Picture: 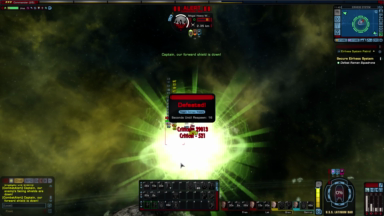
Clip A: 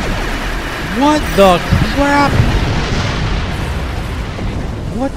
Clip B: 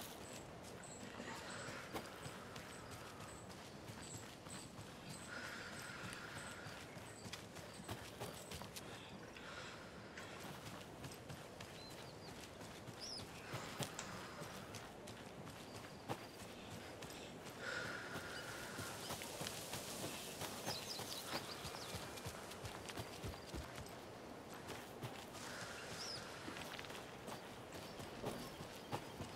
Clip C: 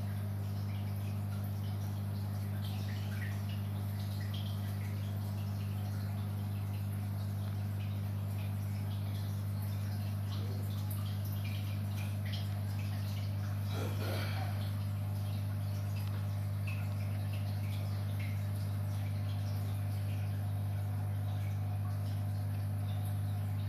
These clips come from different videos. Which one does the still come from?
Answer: A